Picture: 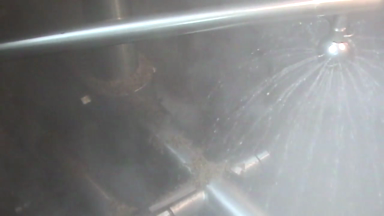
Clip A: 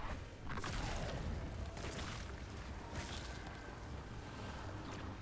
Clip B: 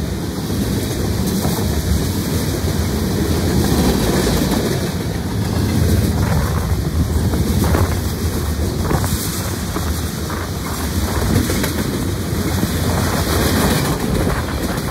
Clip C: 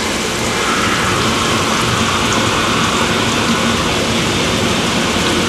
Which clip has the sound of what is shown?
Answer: C